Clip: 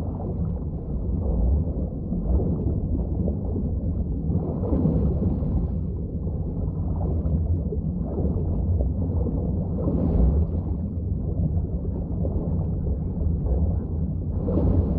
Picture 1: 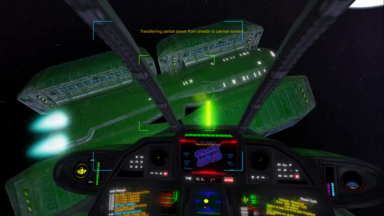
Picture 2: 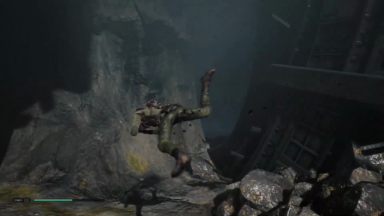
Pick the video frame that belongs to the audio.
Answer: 2